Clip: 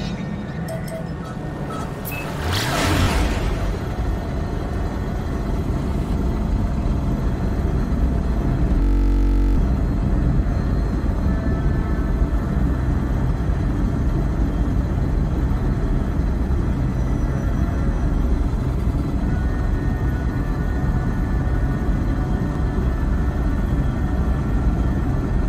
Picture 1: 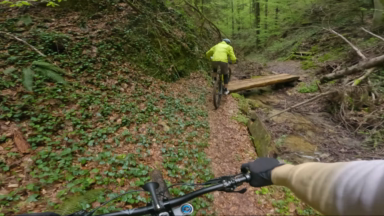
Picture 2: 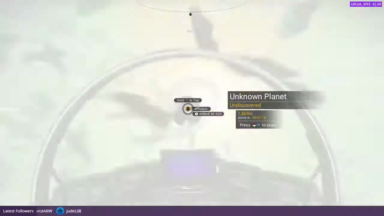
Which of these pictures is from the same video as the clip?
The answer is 2